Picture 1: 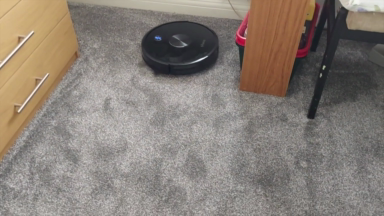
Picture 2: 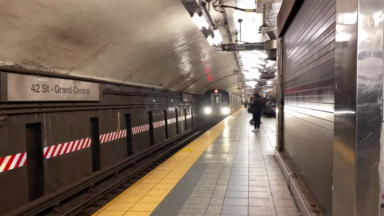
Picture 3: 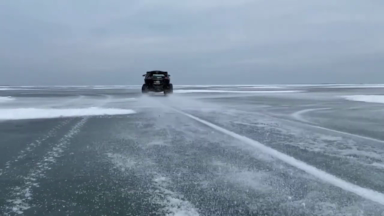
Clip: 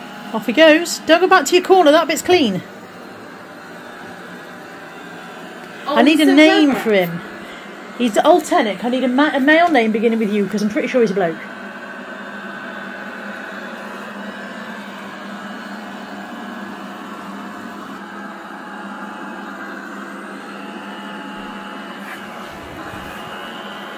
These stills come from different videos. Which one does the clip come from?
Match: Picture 1